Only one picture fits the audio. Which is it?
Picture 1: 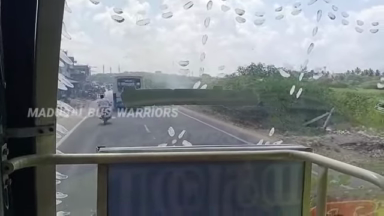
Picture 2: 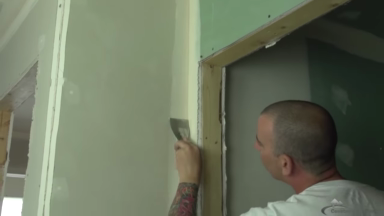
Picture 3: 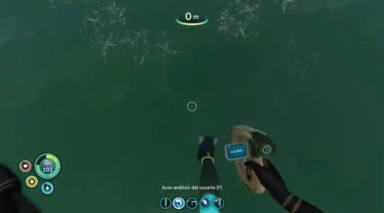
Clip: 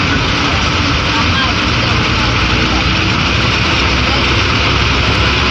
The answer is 1